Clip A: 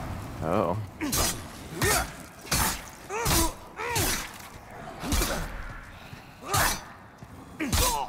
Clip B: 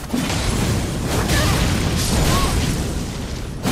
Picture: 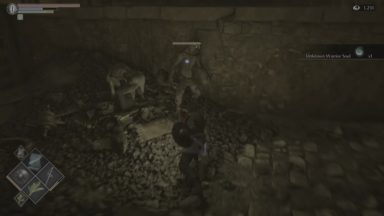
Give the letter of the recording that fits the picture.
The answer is A